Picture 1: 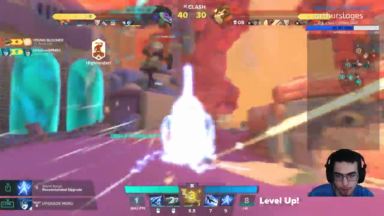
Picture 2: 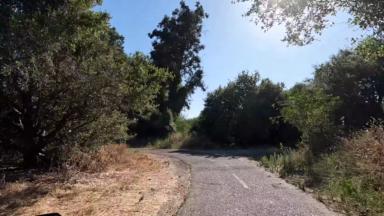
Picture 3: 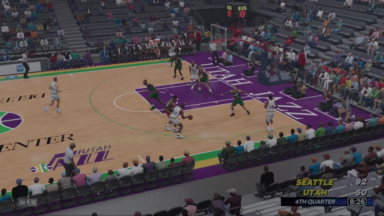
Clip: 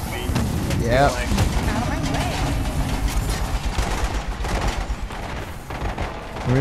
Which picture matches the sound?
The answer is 1